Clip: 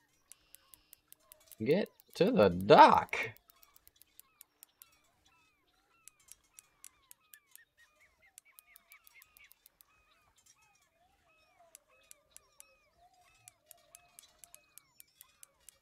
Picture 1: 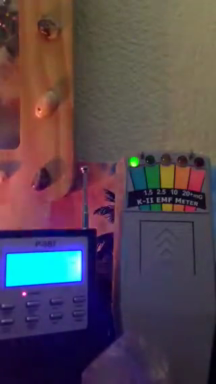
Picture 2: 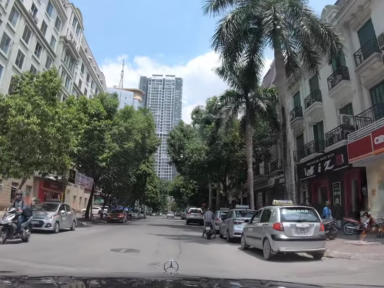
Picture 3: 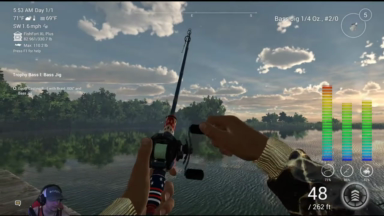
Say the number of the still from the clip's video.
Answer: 3